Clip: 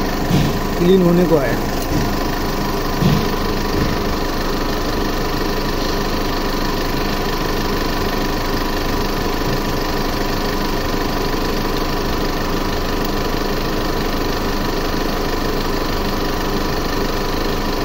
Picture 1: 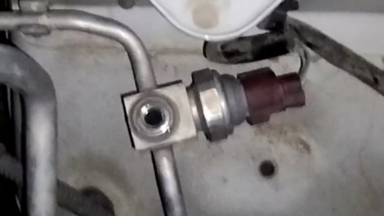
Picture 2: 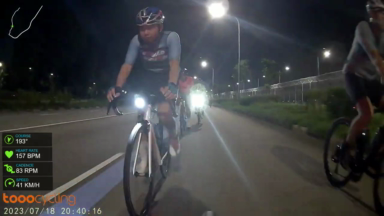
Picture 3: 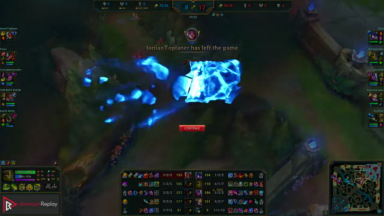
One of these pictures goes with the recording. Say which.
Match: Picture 1